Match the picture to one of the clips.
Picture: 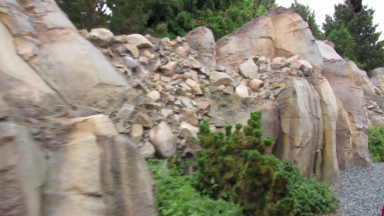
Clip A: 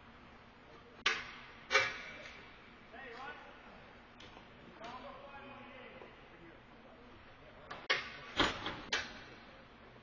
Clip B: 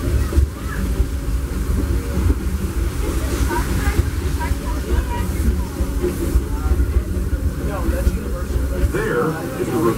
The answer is B